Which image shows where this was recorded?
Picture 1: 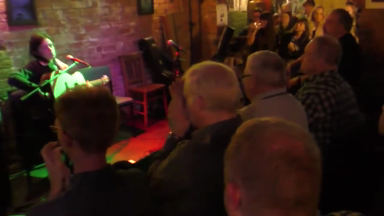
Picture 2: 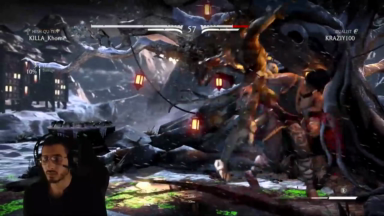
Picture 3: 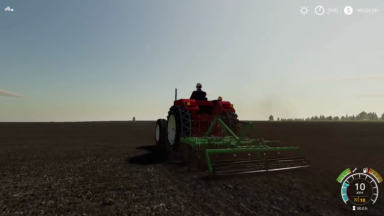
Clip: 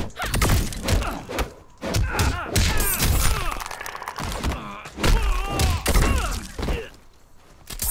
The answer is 2